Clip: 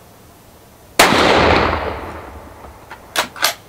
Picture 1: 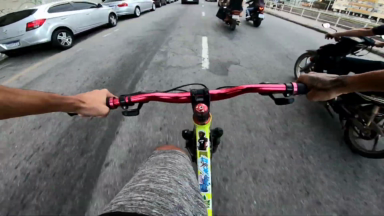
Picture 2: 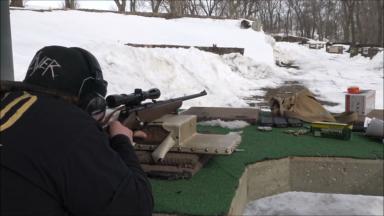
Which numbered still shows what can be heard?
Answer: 2